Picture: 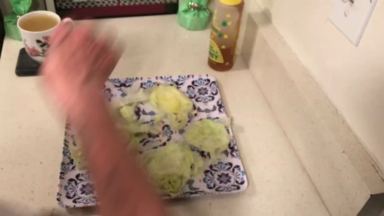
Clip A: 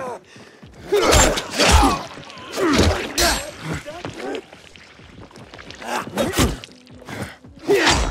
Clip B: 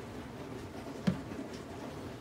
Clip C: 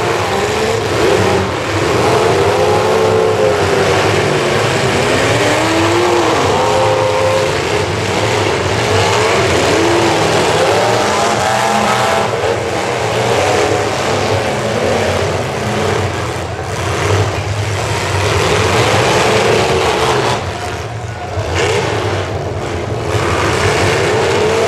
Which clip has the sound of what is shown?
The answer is B